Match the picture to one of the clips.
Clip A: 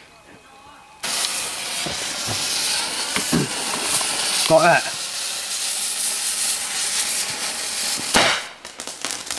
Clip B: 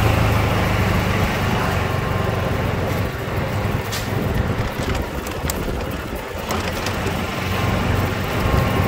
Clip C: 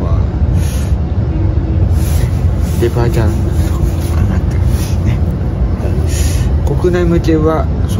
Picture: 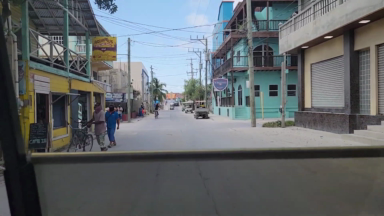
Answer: B